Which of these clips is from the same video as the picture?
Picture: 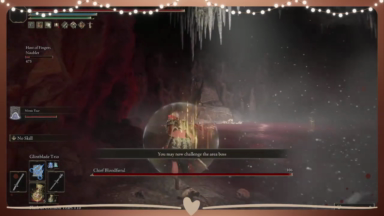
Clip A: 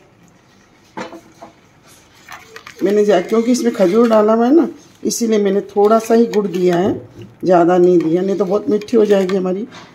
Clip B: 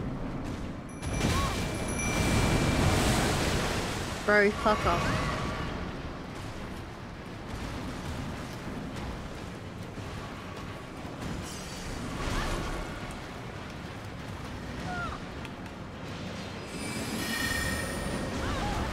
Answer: B